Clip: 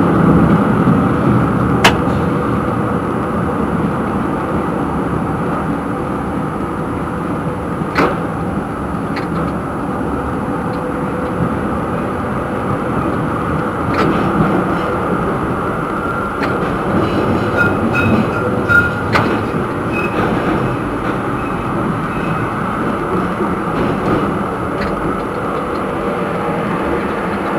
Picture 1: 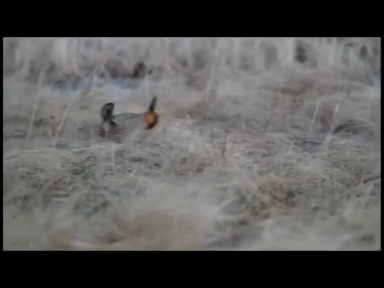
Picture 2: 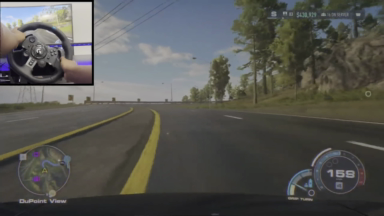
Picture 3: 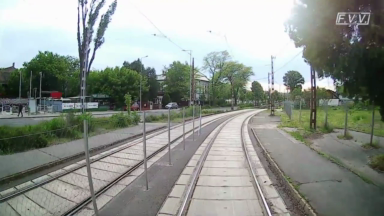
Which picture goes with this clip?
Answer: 3